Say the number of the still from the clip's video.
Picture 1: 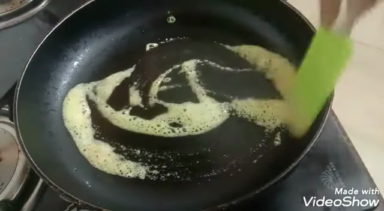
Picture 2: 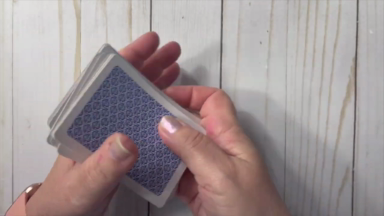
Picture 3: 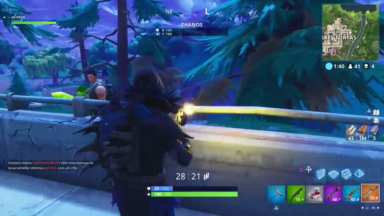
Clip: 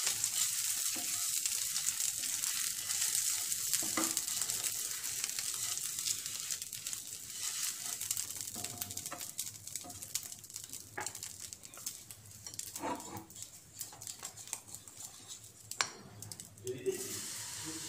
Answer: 1